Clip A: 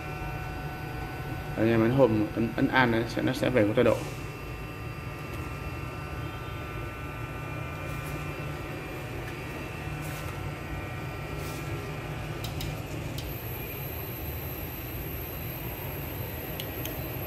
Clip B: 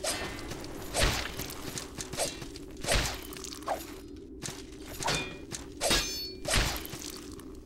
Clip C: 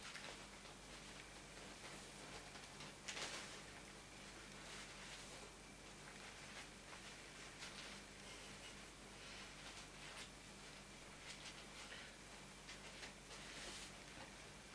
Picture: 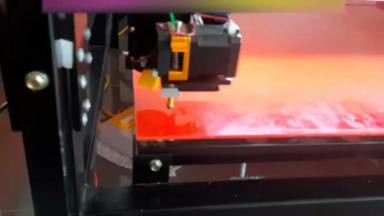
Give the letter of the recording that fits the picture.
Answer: A